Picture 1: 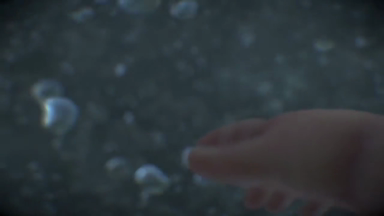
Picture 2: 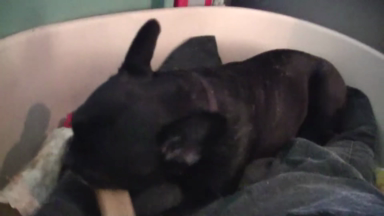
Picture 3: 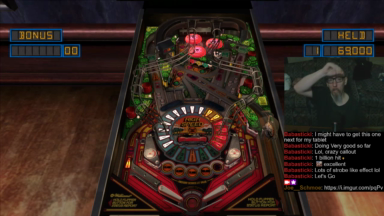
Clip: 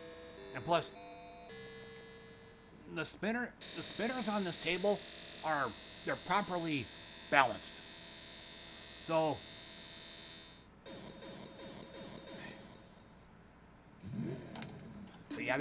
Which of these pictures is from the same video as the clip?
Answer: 3